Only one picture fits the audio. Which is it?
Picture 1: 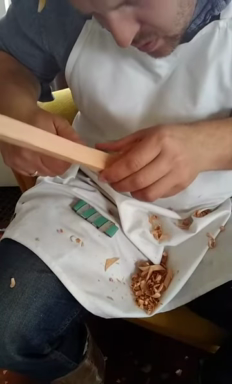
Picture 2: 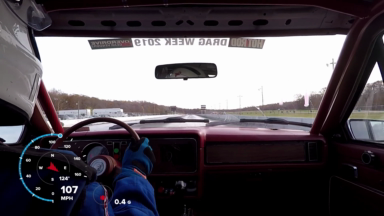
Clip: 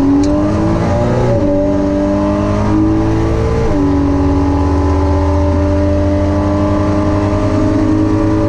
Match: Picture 2